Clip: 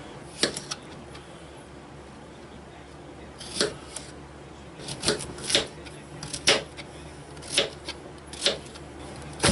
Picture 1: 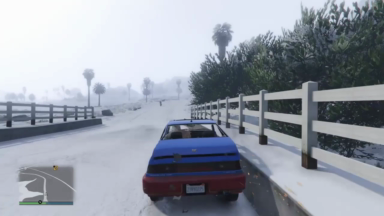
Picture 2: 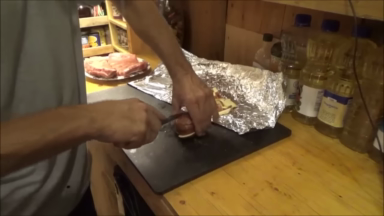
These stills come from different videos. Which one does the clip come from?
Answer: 2